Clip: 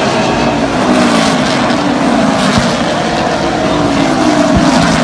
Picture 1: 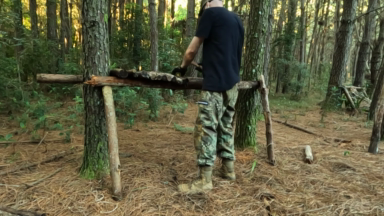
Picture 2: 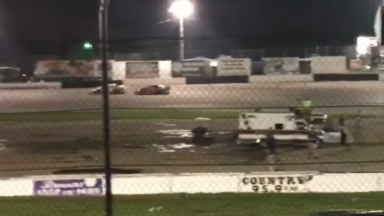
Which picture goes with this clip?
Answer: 2